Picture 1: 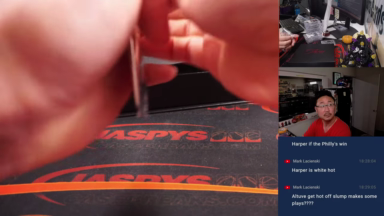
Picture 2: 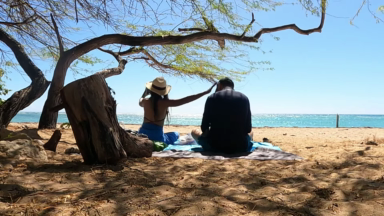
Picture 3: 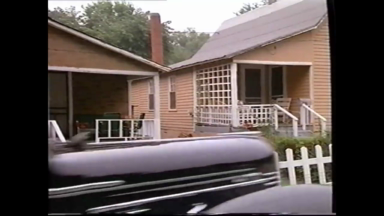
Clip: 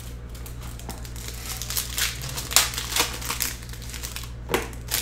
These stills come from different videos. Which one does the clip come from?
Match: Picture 1